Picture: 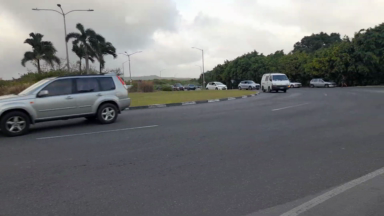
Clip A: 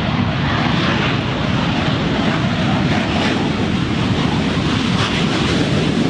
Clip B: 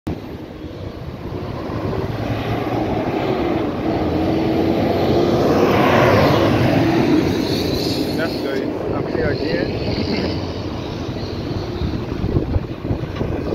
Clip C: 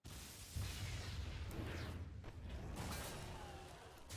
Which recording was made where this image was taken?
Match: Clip B